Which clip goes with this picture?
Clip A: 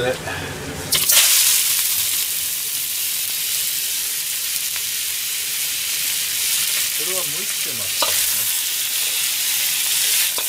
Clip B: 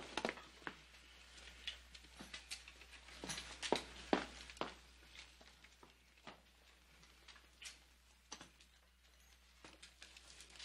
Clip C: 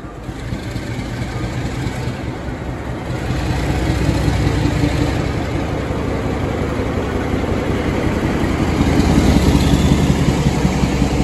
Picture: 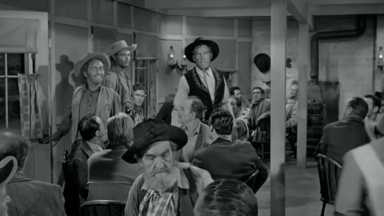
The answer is B